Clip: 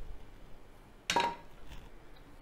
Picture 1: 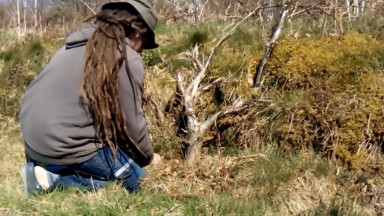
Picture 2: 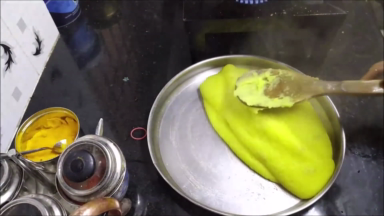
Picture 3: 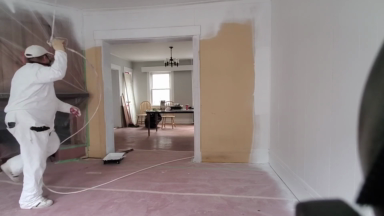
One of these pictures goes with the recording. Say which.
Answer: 2